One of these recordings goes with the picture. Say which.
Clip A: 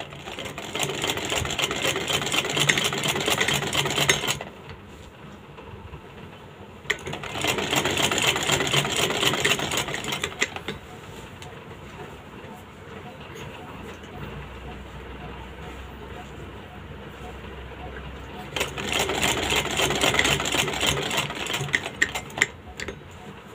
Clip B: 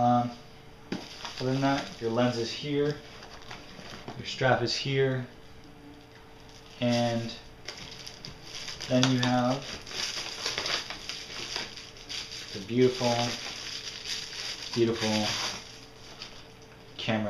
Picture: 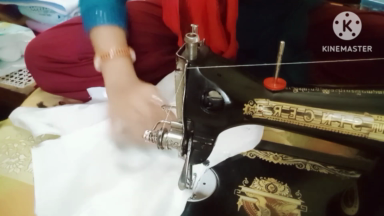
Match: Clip A